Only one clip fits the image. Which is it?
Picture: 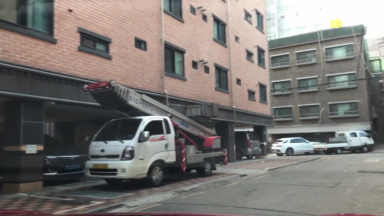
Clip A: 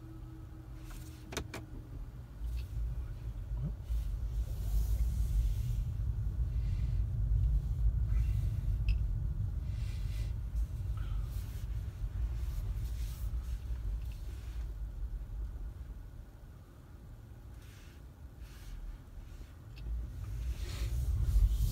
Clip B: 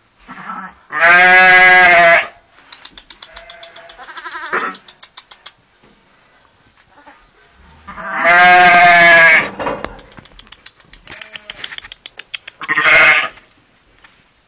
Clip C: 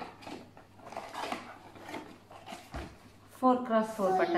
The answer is A